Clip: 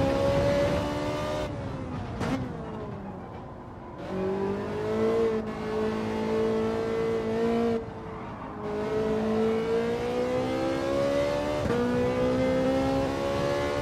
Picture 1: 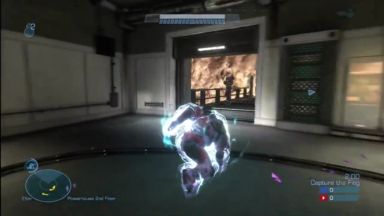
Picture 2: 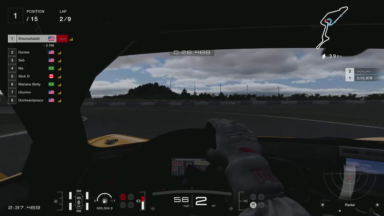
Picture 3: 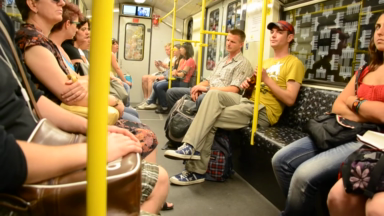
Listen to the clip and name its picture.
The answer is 2